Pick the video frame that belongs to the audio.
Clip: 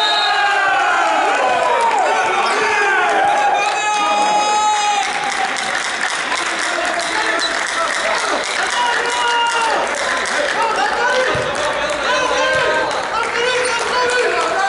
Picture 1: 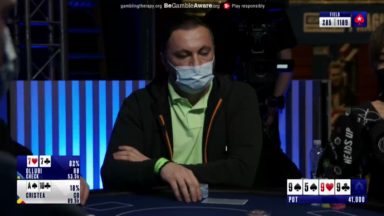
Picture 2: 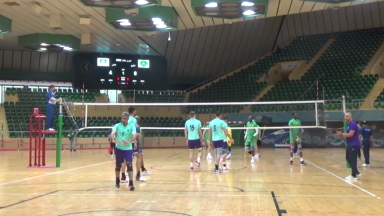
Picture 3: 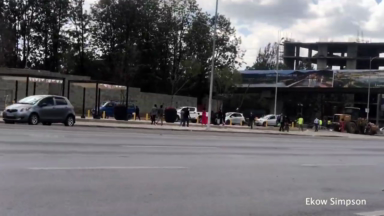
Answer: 2